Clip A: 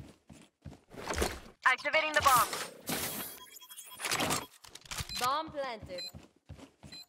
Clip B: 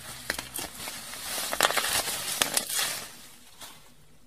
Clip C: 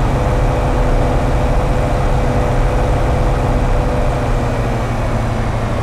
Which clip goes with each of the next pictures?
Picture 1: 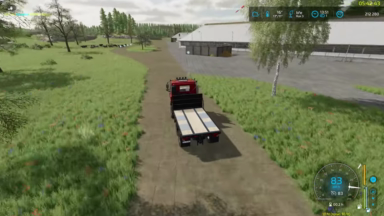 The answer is C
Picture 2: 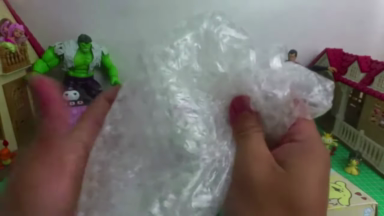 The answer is B